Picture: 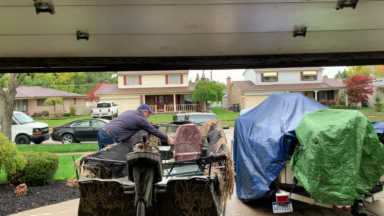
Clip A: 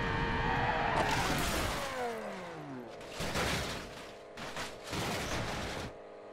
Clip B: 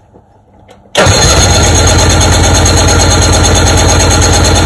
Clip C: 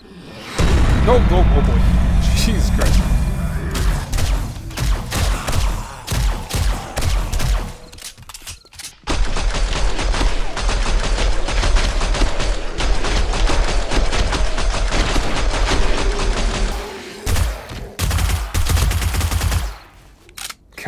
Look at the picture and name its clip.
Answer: B